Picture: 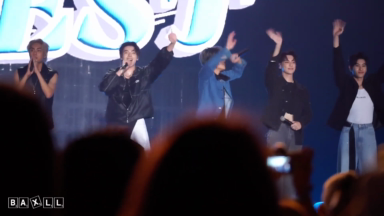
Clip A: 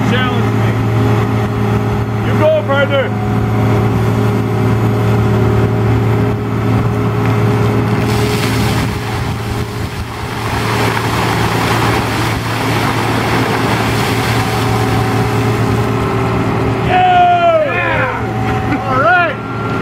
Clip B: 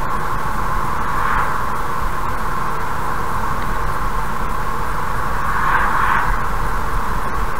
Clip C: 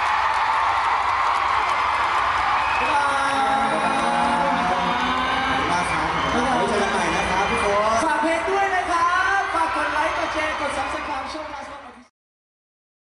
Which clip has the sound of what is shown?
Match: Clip C